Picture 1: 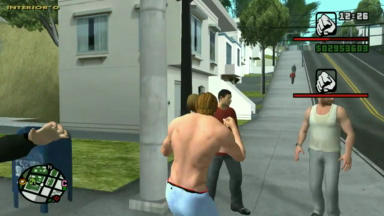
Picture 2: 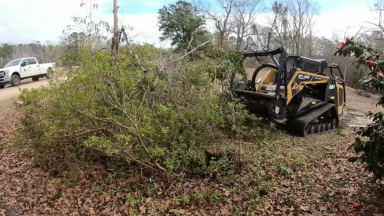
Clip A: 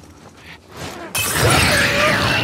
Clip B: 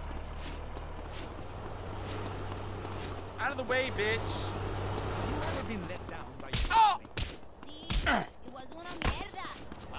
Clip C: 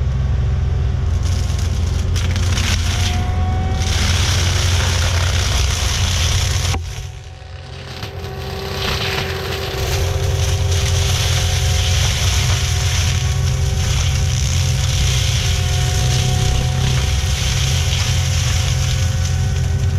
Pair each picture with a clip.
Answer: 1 B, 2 C